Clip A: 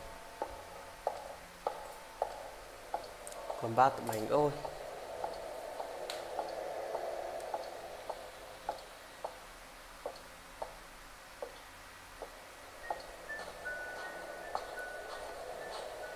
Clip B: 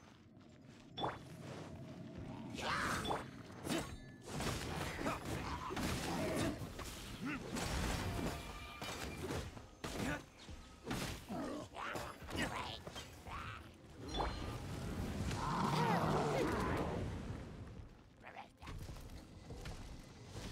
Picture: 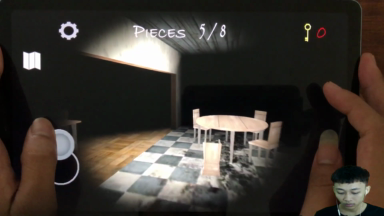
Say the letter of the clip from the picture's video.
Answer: A